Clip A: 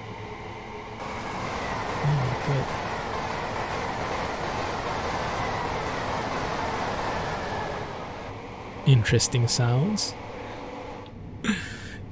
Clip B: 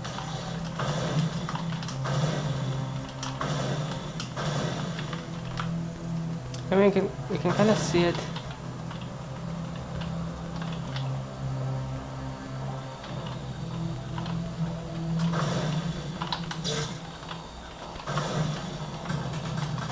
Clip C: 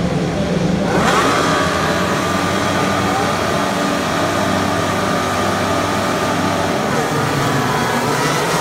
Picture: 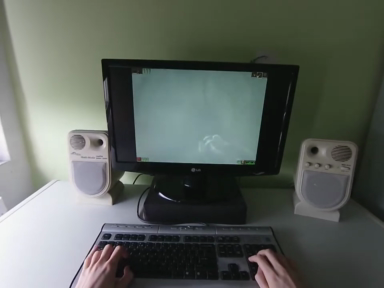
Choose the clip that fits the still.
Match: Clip B